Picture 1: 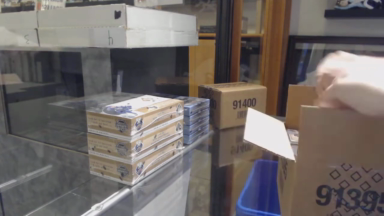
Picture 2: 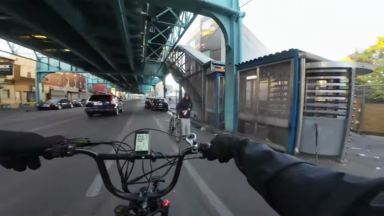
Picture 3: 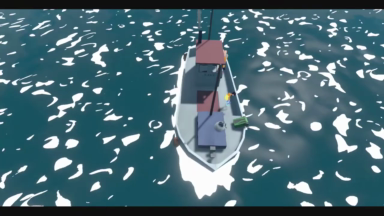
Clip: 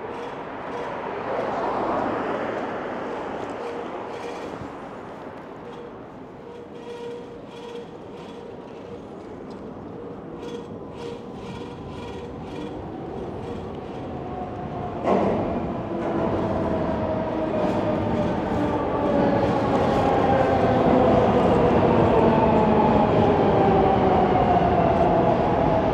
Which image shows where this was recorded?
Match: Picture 2